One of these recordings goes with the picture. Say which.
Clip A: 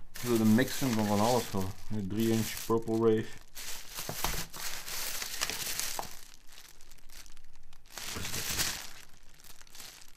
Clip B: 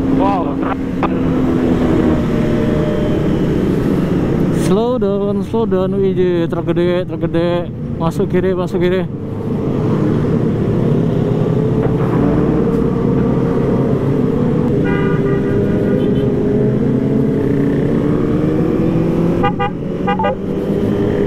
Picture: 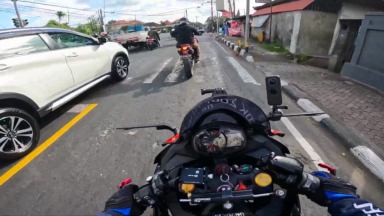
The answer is B